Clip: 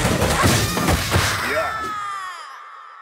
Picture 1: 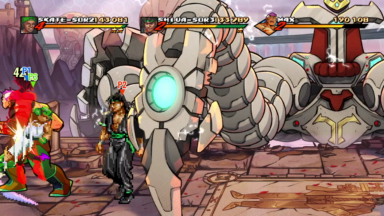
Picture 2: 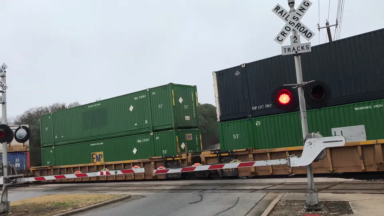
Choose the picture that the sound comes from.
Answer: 1